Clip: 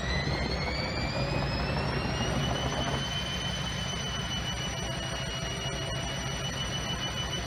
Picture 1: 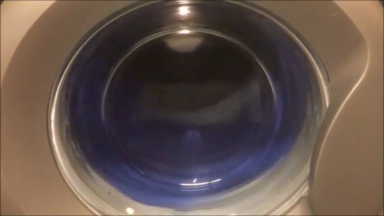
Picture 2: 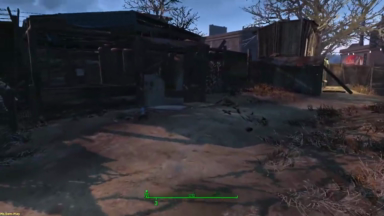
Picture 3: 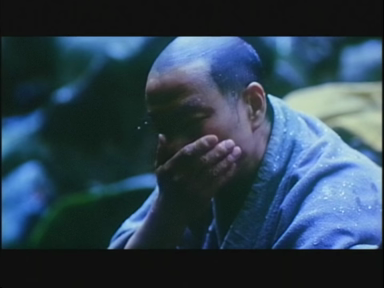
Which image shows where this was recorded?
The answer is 1